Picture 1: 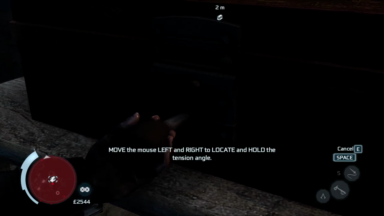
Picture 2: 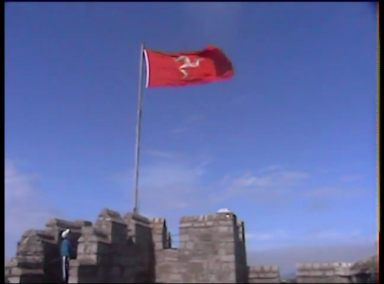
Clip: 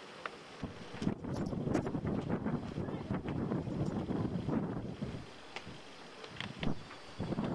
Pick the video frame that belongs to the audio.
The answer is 2